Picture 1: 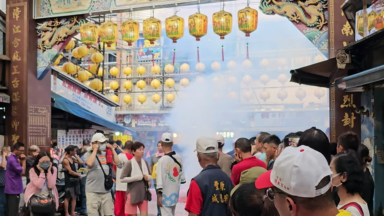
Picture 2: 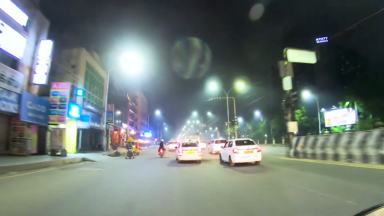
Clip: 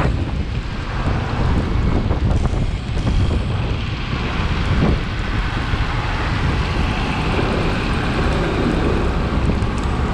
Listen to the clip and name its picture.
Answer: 2